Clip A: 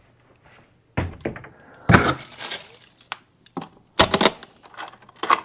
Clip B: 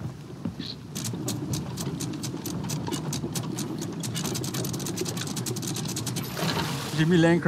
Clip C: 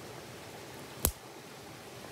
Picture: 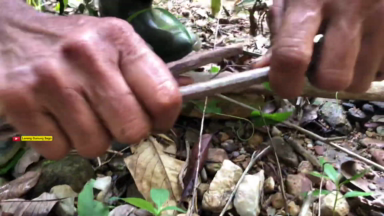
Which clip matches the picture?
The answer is C